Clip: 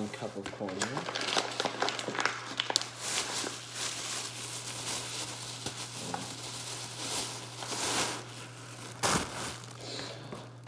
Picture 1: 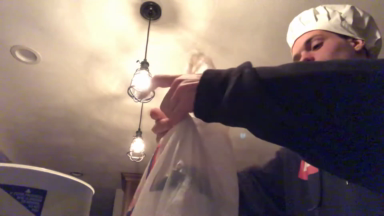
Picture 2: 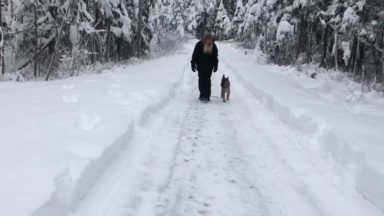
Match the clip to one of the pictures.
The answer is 1